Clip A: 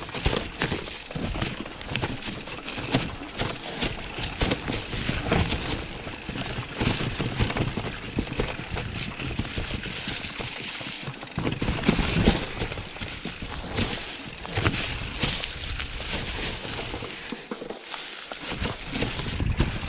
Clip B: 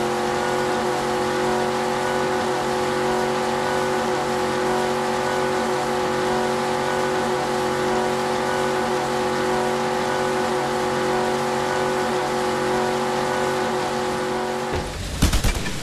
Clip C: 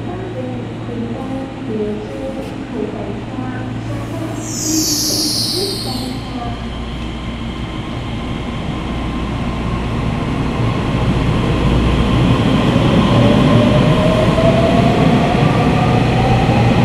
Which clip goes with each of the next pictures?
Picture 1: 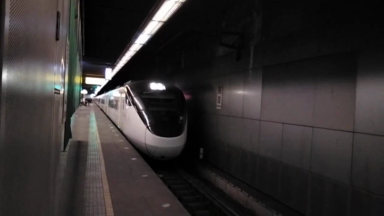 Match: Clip C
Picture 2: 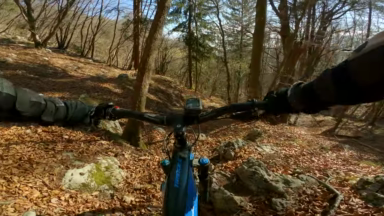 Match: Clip A